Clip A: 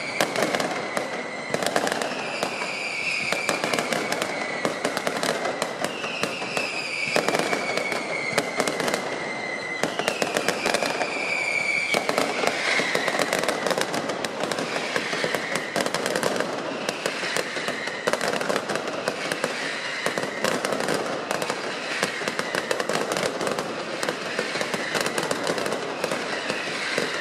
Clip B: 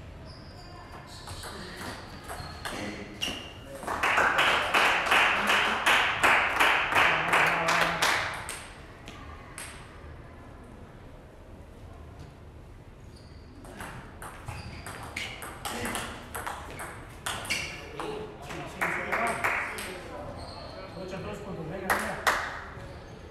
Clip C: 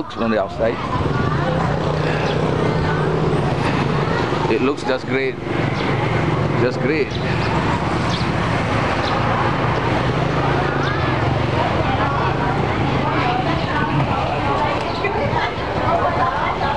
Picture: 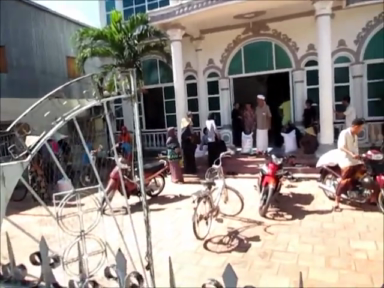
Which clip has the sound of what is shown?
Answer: C